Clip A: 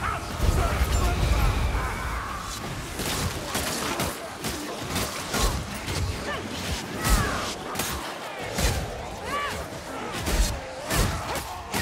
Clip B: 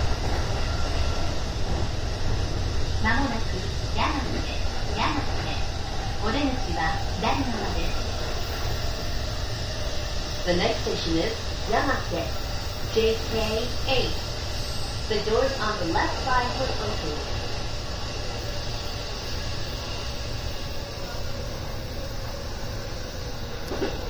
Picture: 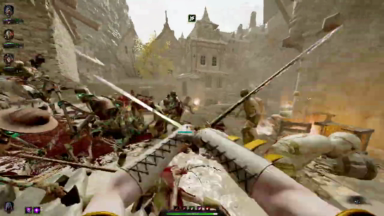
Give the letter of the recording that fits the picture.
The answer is A